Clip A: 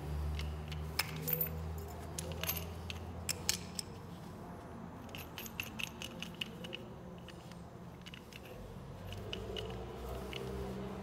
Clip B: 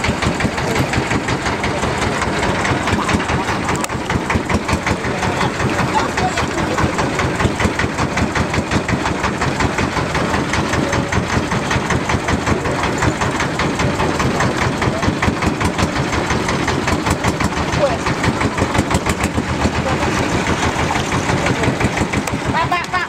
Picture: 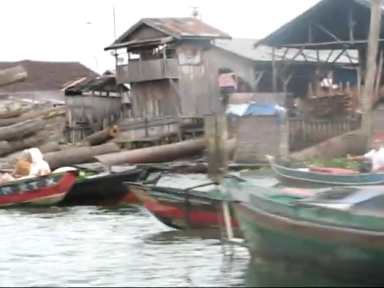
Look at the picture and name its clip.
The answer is B